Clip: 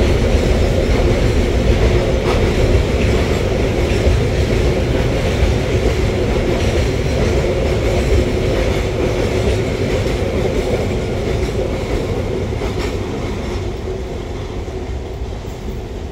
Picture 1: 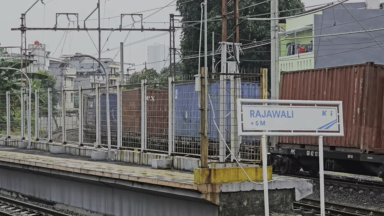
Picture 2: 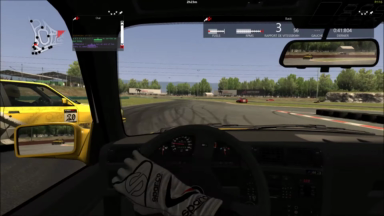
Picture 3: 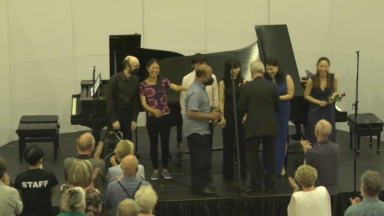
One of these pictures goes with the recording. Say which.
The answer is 1